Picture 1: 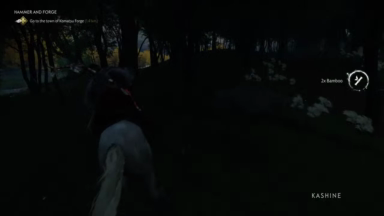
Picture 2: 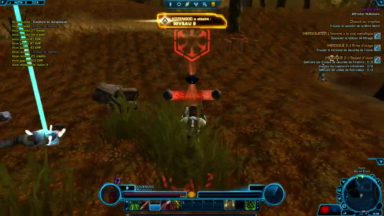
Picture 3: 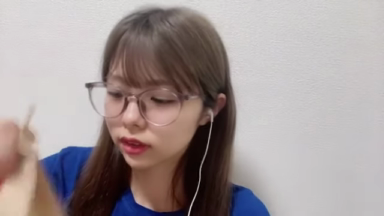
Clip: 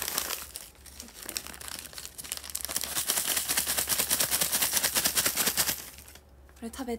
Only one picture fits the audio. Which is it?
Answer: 3